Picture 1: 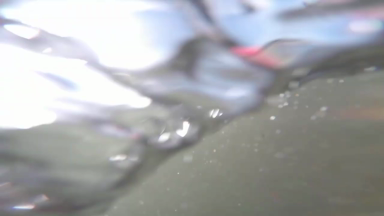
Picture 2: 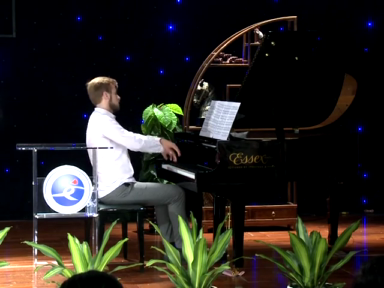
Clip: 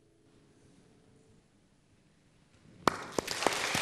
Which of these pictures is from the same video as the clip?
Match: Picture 2